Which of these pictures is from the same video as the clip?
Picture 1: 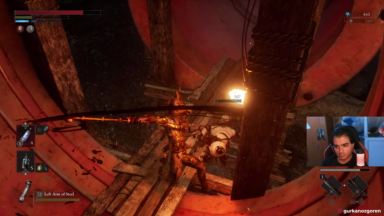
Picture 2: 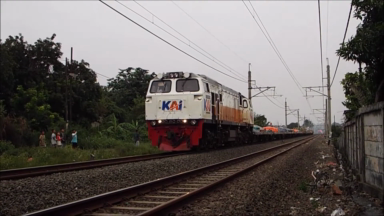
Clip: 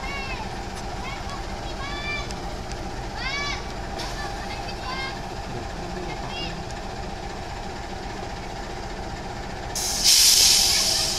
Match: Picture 2